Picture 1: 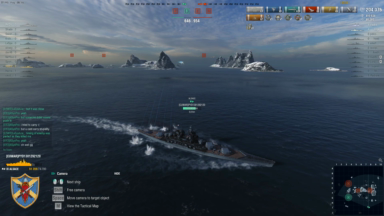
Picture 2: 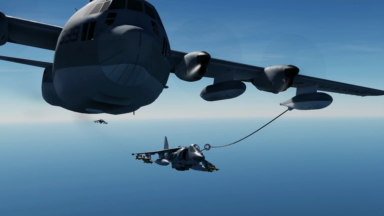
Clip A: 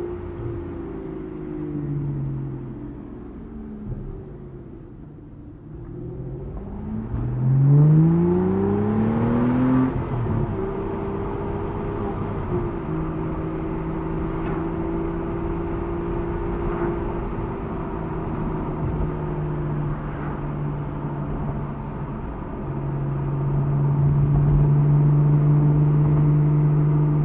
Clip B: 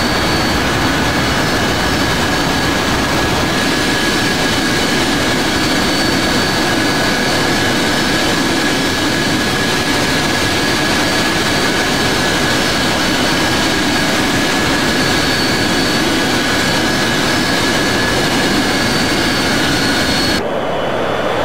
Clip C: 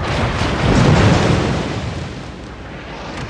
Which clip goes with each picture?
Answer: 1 C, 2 B